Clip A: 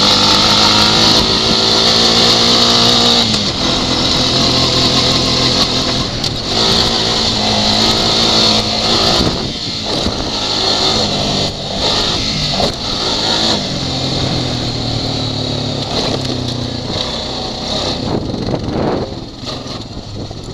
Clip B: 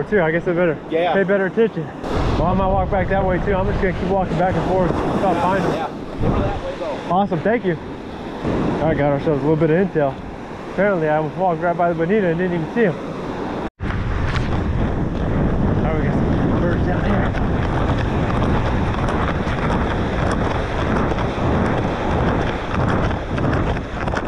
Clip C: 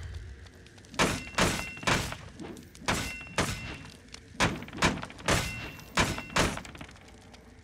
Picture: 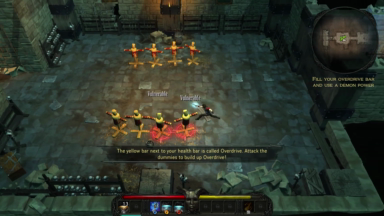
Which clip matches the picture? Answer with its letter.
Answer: C